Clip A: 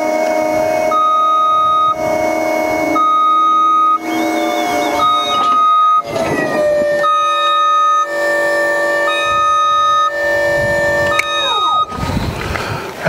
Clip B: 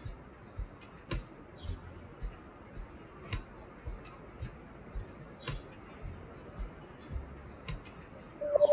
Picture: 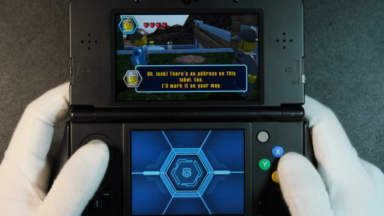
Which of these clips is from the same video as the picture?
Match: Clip B